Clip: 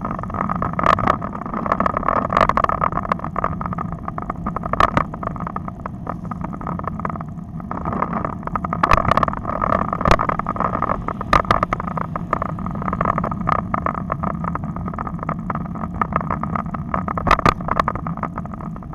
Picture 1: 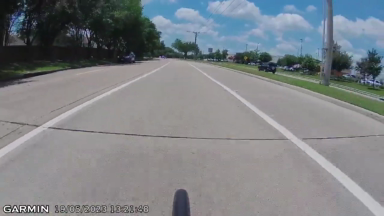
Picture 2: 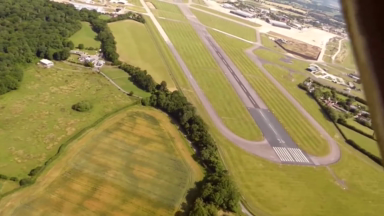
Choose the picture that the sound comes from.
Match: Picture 1